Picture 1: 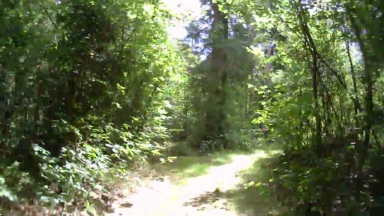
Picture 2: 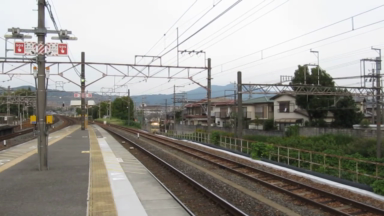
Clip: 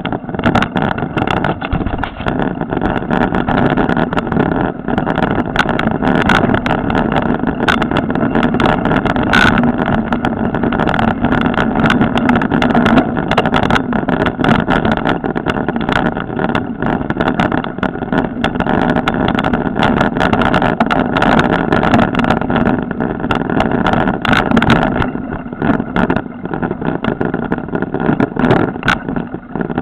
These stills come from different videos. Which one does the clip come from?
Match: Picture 1